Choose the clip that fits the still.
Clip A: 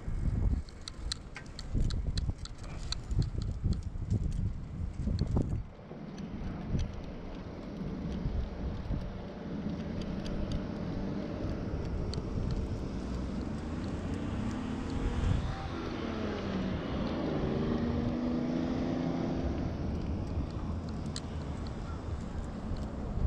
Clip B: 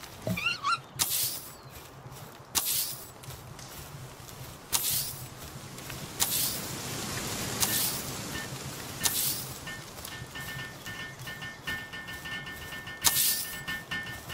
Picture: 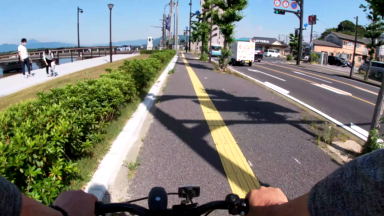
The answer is A